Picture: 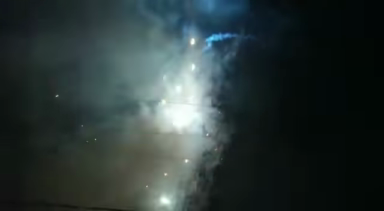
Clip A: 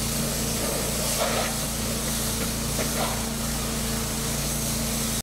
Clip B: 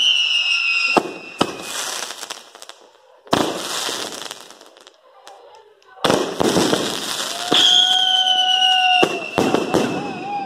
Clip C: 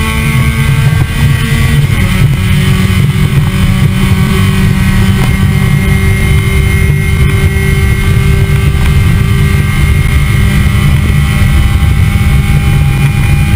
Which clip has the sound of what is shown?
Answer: B